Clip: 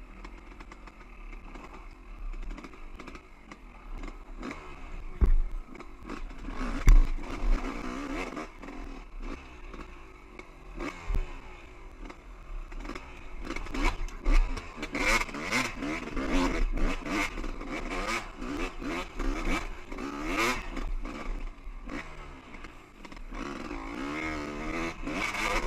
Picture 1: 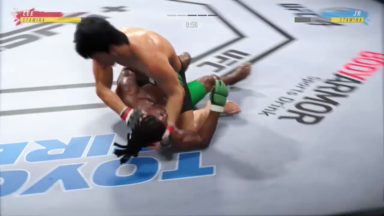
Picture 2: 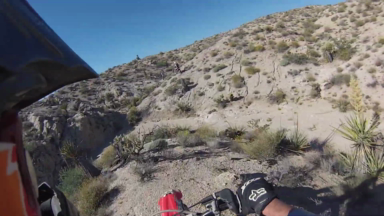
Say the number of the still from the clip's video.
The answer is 2